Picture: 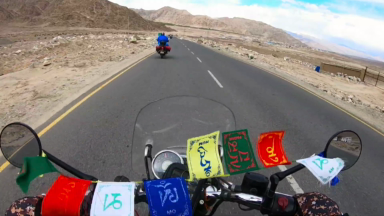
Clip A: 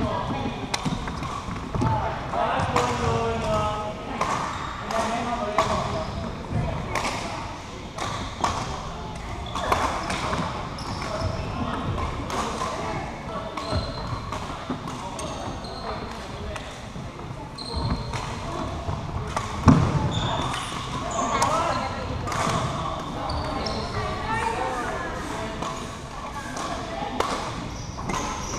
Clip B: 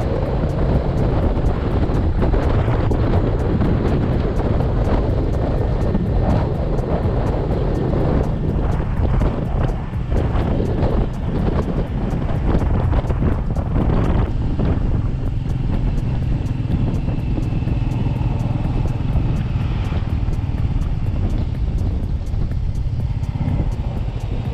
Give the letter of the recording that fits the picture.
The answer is B